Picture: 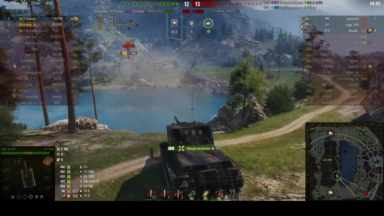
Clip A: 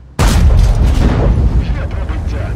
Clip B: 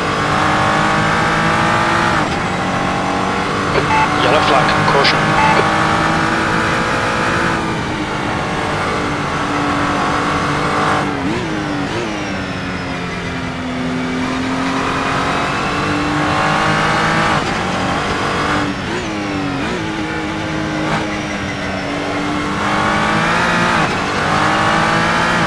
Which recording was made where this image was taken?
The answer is A